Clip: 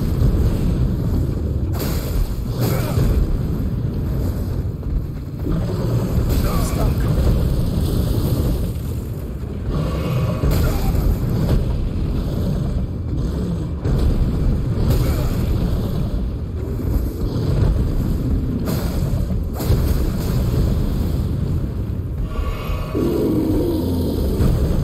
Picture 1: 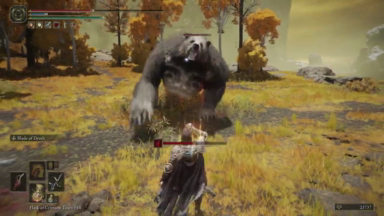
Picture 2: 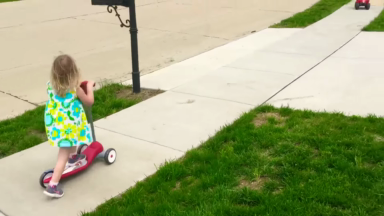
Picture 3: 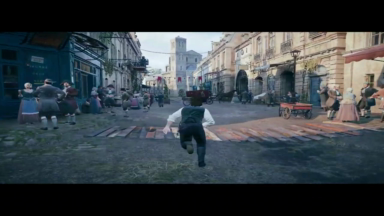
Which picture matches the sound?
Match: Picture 1